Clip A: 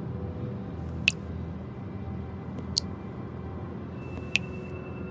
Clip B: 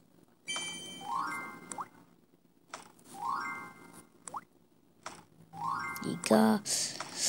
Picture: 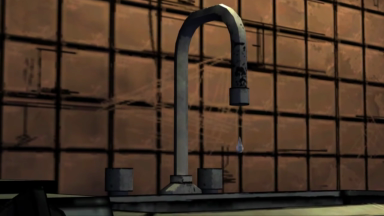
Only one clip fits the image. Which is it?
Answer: A